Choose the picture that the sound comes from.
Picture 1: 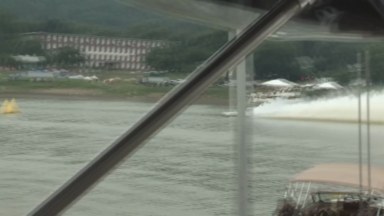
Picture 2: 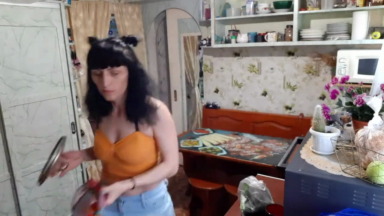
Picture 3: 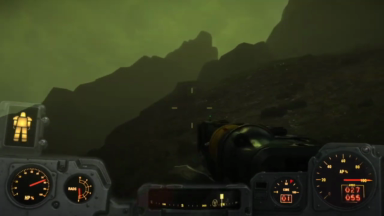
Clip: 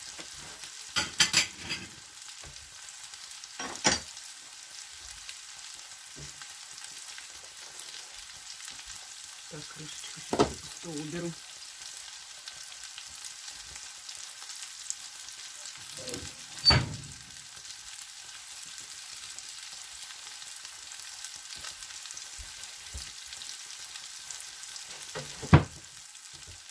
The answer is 2